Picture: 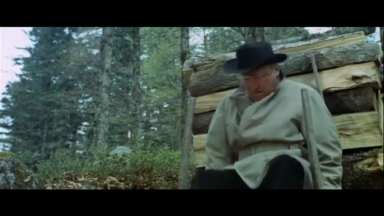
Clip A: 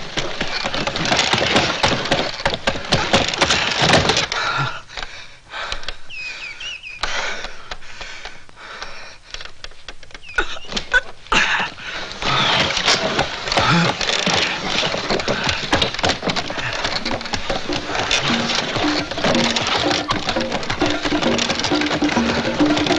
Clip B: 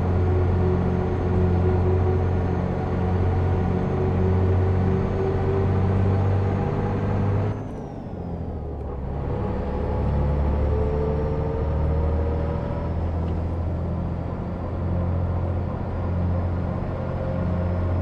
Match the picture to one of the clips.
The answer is A